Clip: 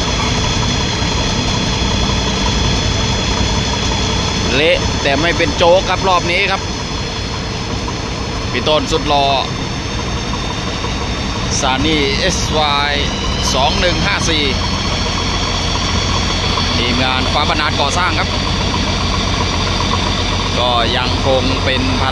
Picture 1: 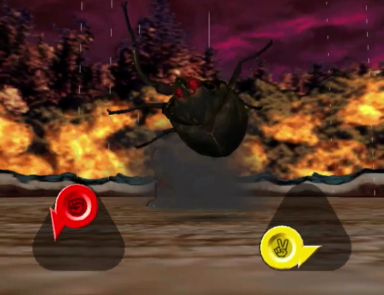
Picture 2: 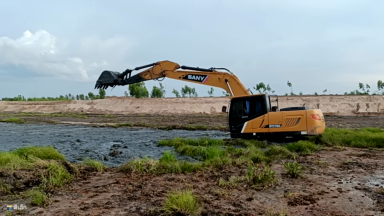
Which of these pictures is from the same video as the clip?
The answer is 2